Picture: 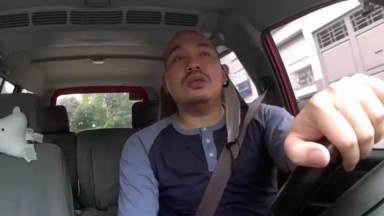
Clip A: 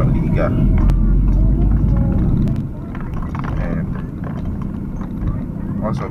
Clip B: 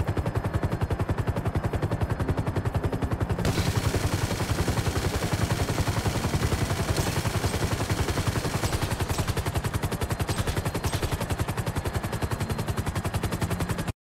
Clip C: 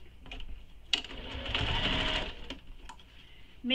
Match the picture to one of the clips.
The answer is A